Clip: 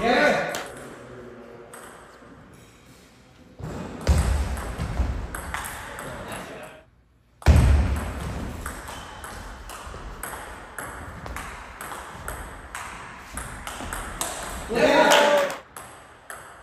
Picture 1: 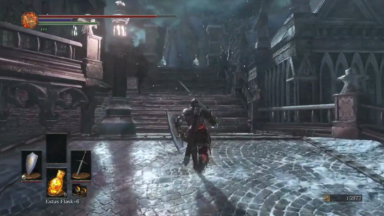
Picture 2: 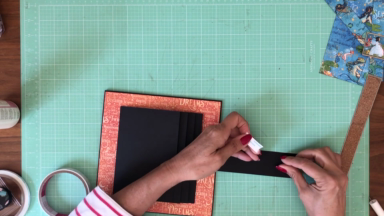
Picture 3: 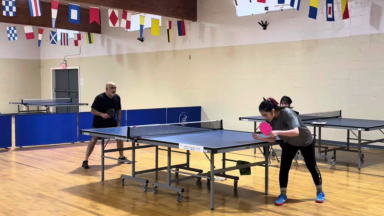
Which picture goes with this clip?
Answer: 3